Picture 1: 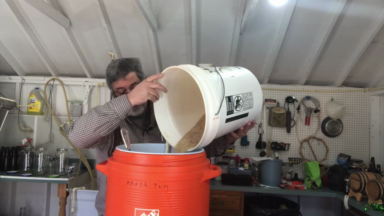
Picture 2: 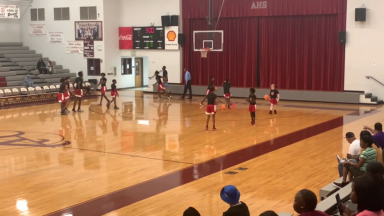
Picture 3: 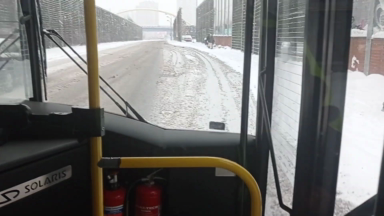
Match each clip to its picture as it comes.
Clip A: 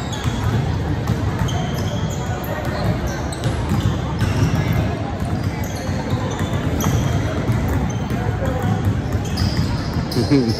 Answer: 2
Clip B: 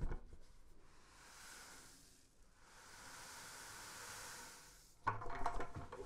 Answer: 1